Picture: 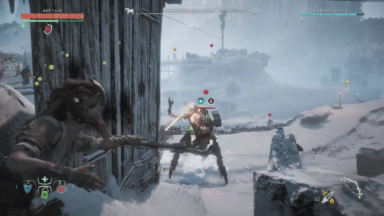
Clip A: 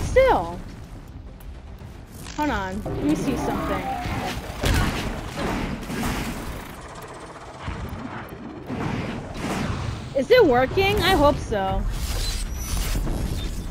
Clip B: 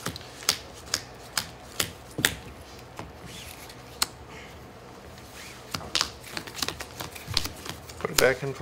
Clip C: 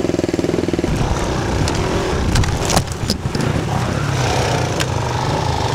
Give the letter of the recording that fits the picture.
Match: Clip A